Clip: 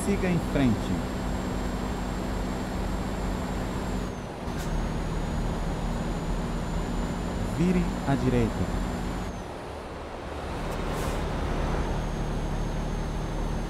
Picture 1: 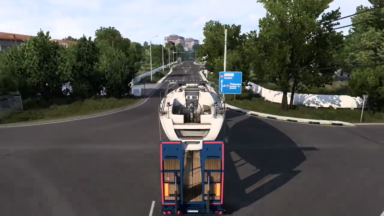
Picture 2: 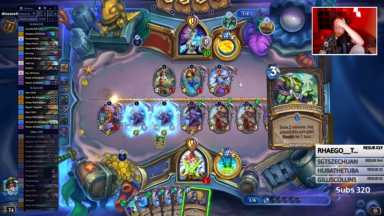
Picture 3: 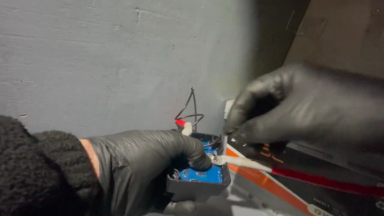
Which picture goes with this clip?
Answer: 1